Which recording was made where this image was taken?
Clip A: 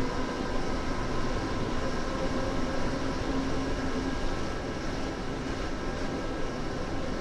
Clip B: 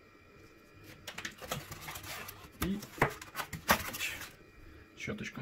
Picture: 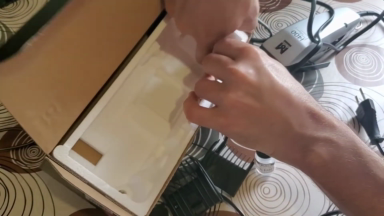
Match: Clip B